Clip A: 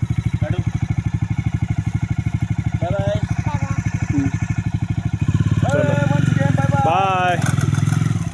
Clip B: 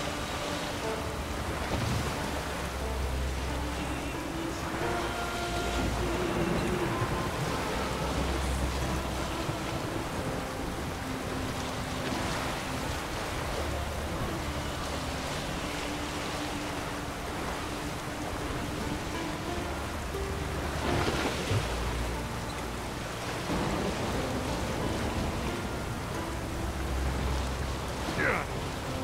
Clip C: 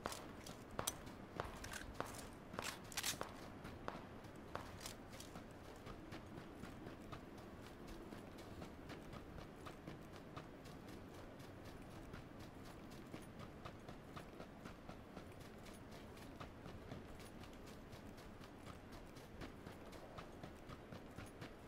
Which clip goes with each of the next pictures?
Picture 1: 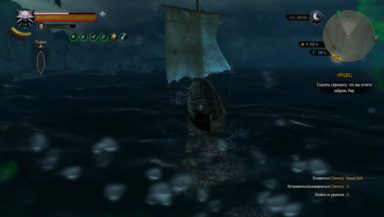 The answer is B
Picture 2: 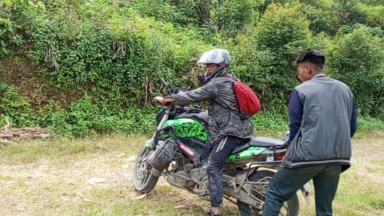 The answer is A